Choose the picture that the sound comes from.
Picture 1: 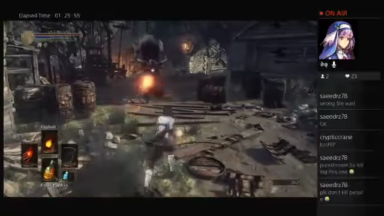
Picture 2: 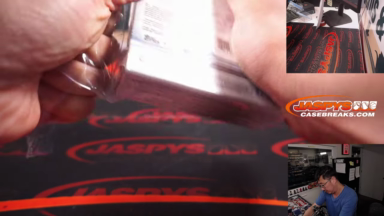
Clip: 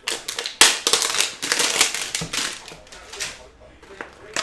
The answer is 2